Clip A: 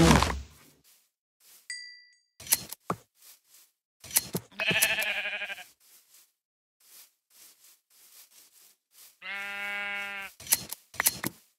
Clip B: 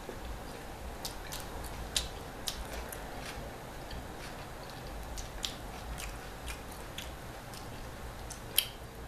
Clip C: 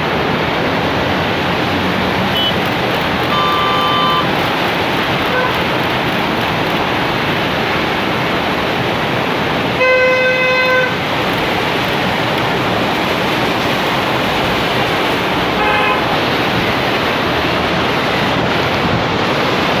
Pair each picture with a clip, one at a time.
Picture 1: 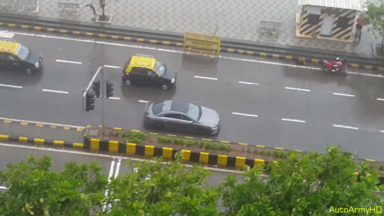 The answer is C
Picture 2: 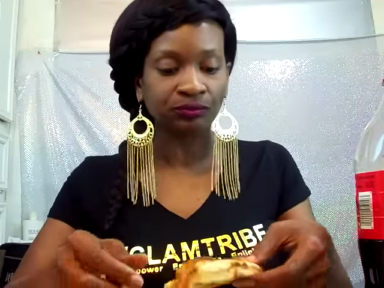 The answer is B